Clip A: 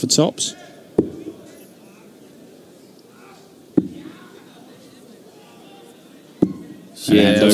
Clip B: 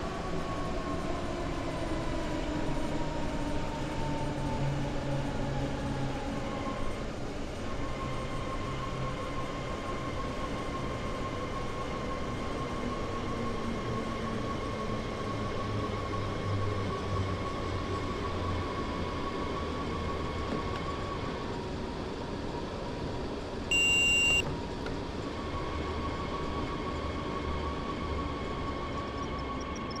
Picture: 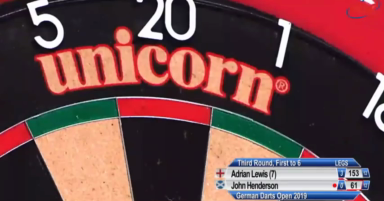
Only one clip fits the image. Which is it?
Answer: A